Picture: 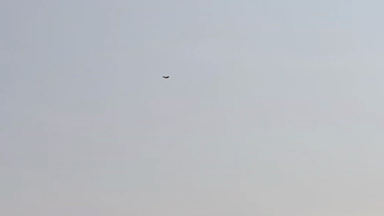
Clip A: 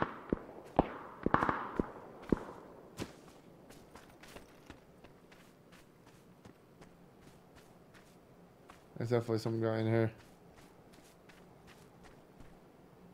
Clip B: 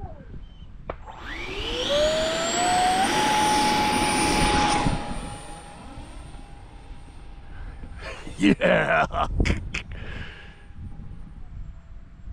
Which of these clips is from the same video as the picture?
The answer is B